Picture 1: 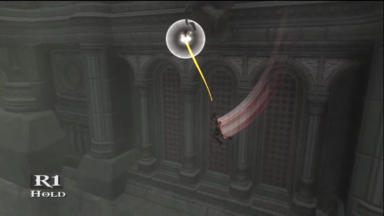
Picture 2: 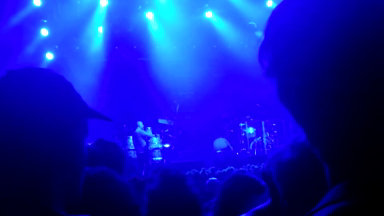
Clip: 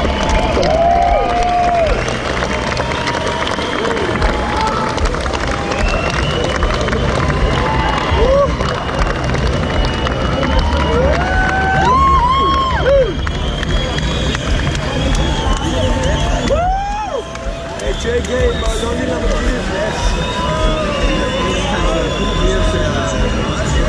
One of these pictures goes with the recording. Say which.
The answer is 2